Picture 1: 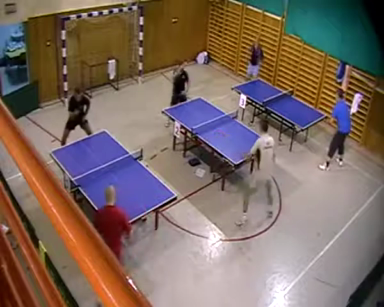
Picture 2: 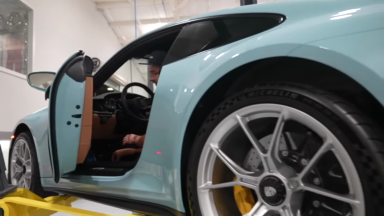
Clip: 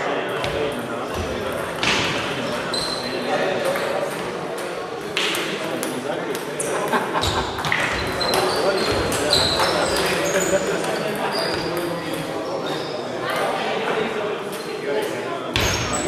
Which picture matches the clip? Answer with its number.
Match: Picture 1